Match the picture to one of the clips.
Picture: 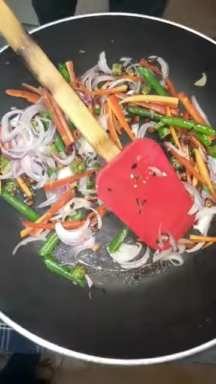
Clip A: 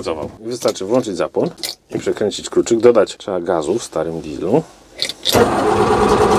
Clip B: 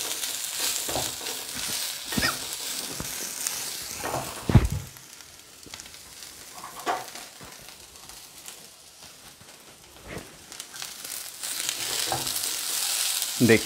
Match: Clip B